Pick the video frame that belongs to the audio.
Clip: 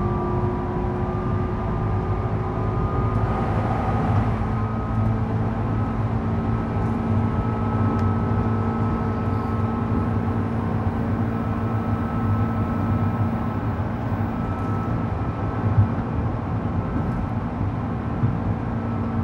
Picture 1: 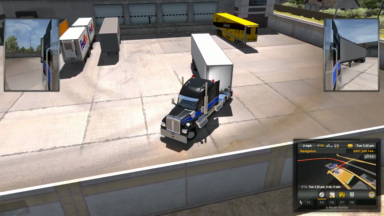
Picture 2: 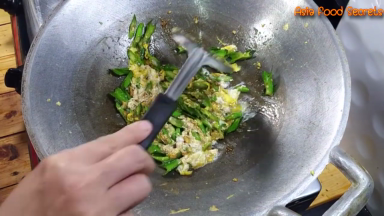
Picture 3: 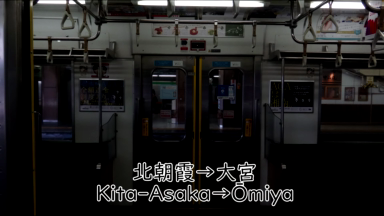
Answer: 3